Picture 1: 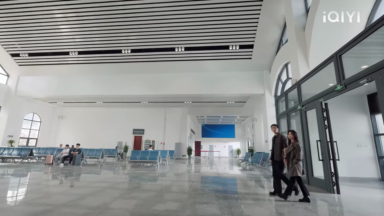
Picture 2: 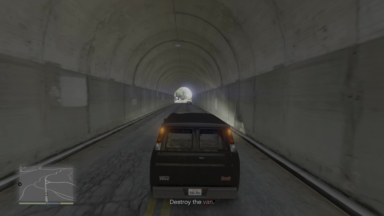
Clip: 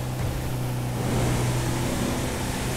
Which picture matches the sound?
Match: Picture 2